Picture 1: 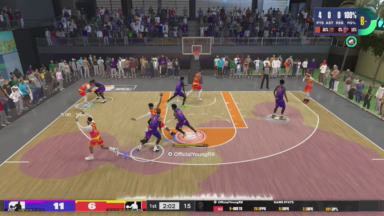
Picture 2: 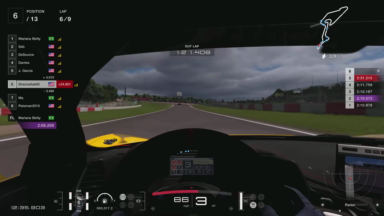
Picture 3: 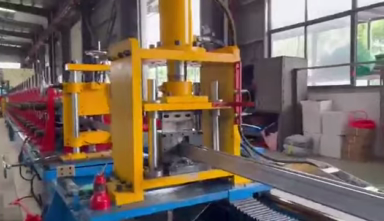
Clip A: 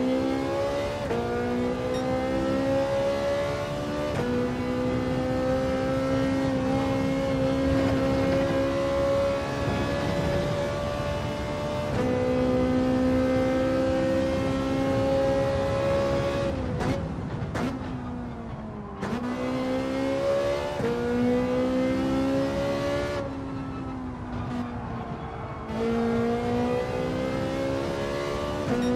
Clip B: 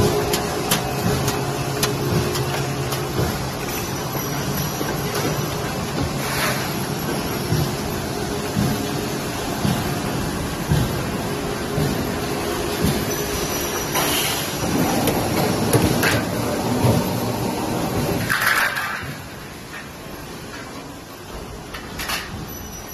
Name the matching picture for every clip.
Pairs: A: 2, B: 3